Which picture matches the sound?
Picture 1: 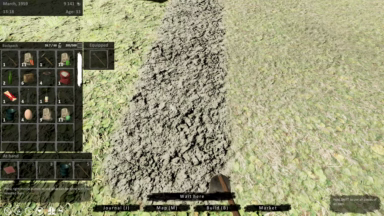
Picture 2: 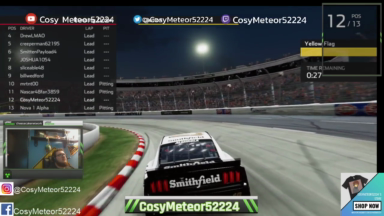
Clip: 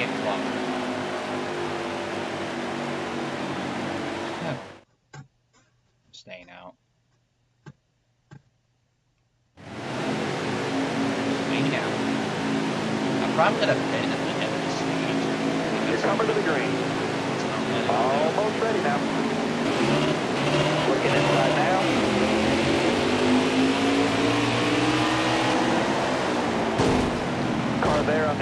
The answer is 2